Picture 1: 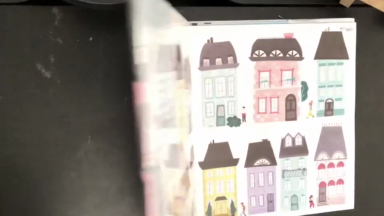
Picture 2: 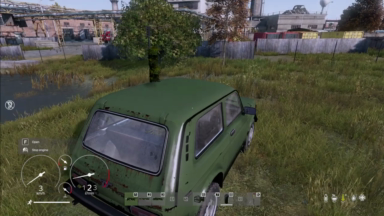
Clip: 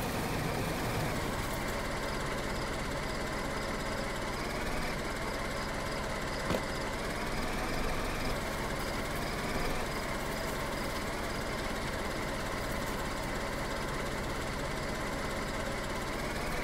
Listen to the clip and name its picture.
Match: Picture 2